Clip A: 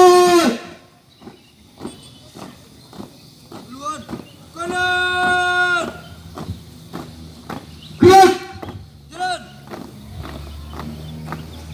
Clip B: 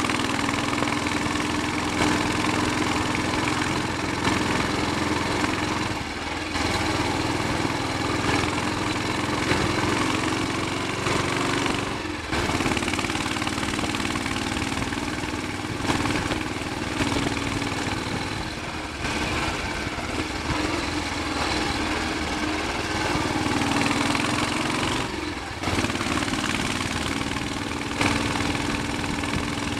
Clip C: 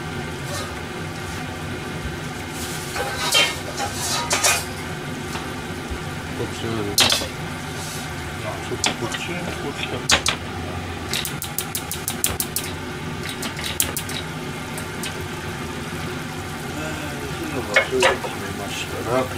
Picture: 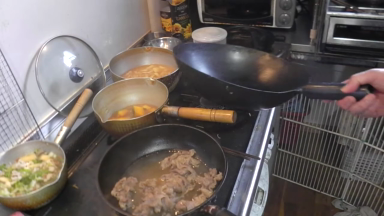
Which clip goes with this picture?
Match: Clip C